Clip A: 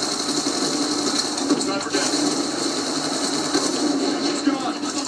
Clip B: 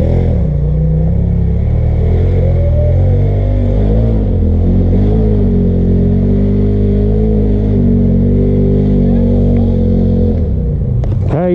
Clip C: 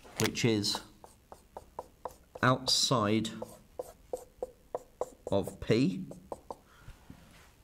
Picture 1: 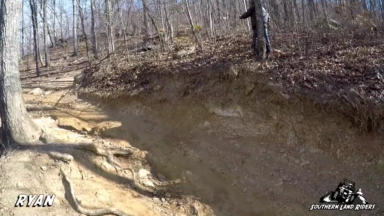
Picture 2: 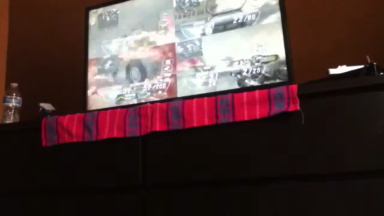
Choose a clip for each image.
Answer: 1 B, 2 A